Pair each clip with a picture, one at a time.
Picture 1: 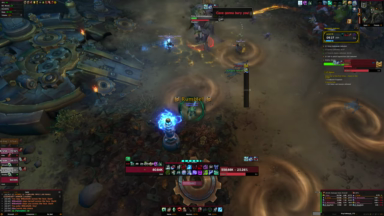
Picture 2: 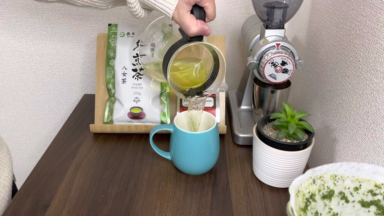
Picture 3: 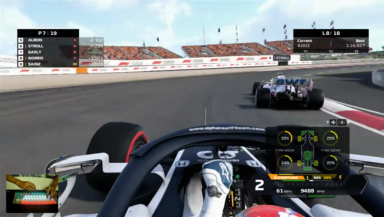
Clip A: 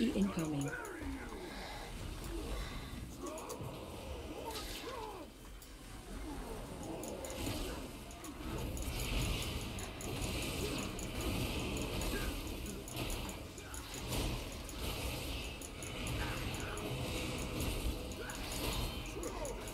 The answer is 1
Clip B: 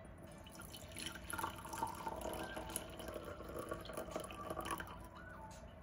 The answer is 2